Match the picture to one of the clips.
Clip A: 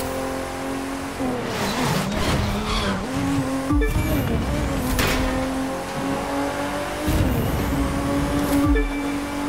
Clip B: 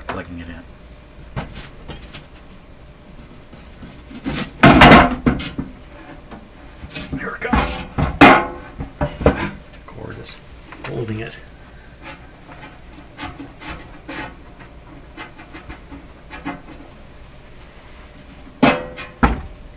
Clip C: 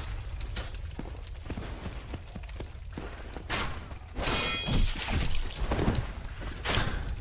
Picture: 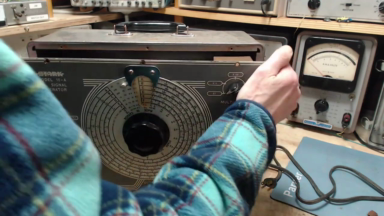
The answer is B